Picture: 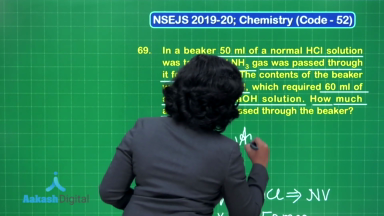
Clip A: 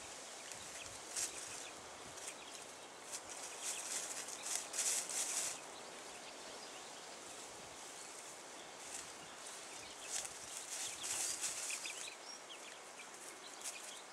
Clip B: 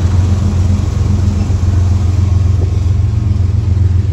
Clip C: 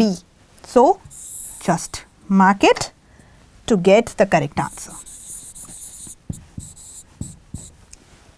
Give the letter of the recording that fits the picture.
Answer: C